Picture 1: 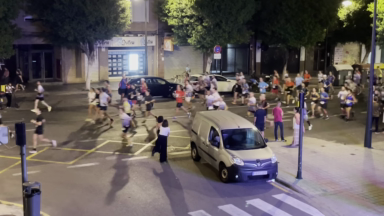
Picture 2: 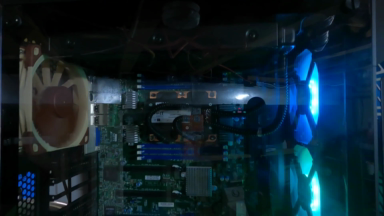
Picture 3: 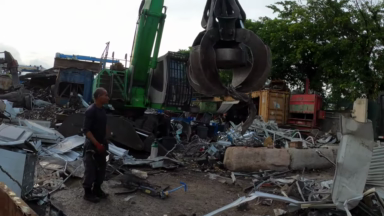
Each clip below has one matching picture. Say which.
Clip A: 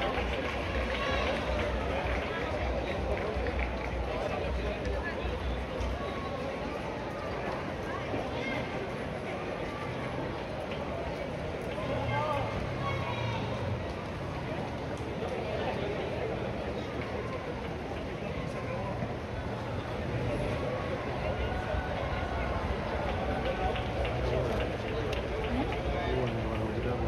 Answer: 1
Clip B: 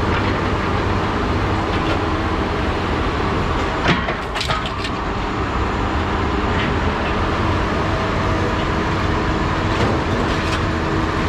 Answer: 3